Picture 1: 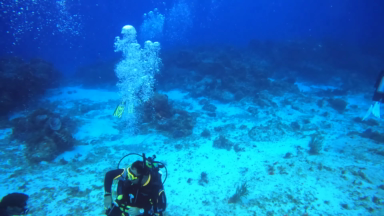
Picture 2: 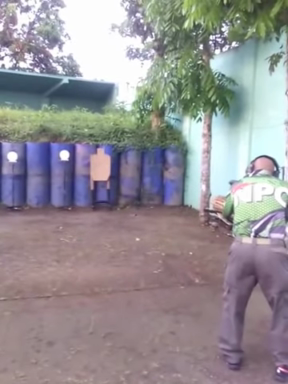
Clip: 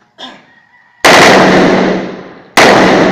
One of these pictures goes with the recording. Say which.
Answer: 2